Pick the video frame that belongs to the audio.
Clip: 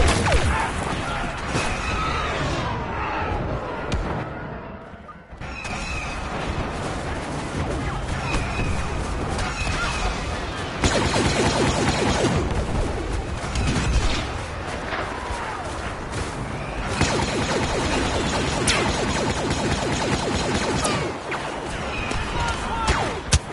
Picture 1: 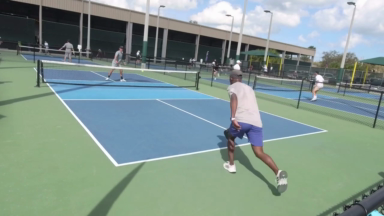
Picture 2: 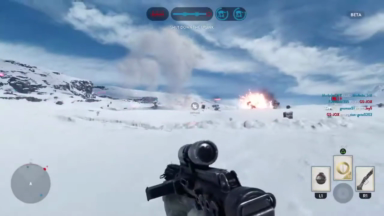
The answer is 2